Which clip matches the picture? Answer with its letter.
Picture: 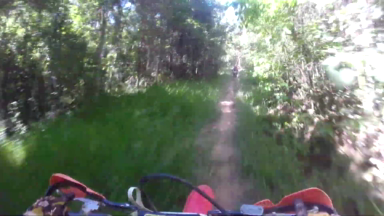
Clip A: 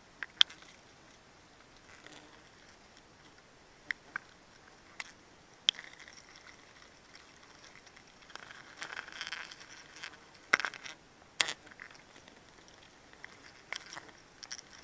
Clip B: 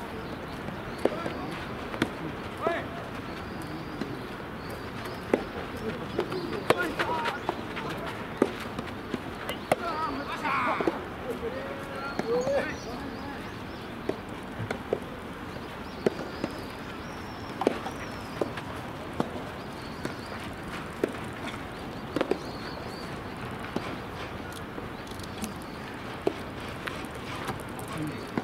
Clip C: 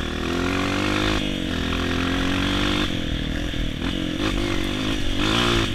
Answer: C